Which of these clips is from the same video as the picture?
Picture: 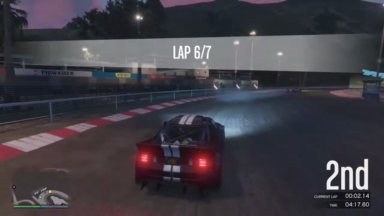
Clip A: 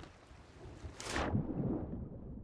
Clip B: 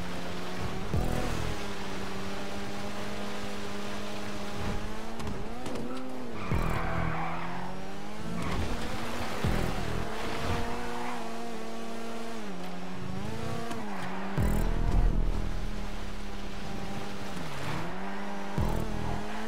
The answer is B